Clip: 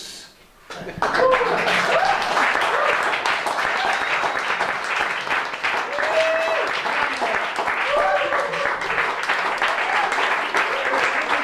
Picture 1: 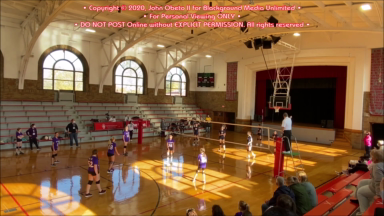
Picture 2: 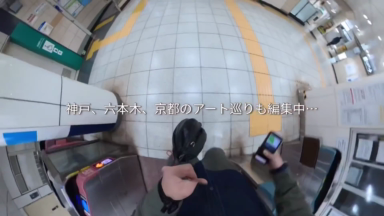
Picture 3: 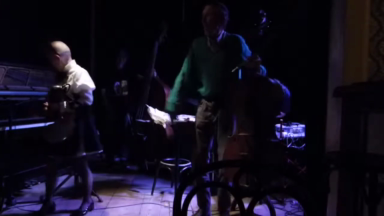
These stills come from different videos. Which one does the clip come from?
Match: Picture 3